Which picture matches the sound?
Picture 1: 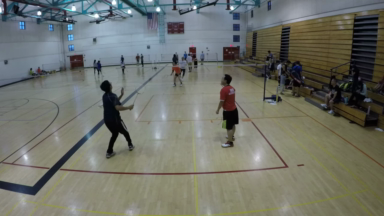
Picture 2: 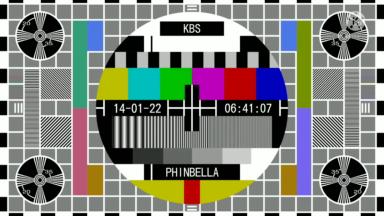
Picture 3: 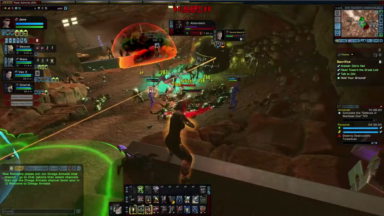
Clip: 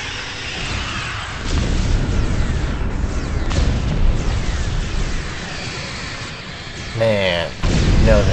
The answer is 3